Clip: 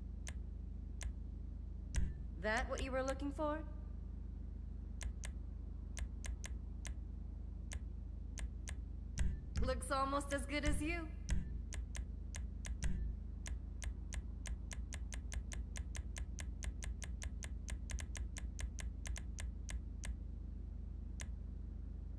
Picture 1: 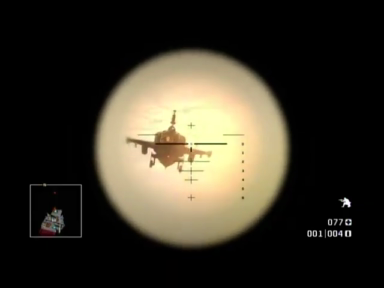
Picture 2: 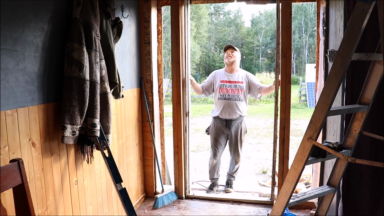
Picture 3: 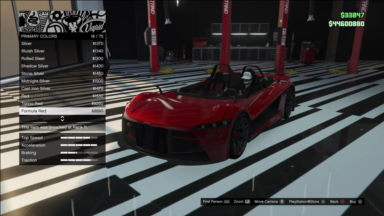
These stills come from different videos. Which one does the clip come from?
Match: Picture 3